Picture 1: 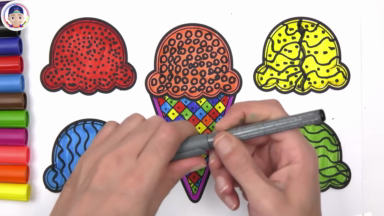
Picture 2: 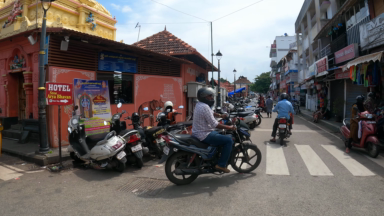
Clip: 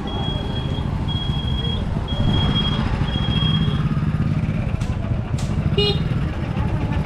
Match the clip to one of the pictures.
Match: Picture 2